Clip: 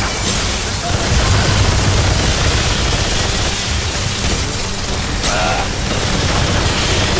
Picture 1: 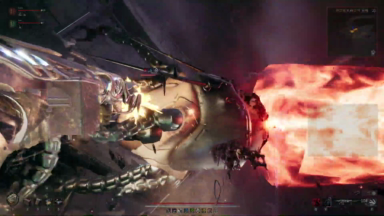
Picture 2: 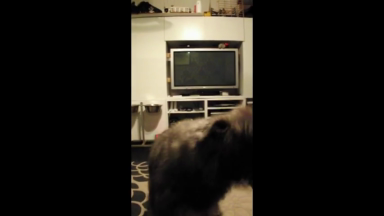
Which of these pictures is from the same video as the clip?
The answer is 1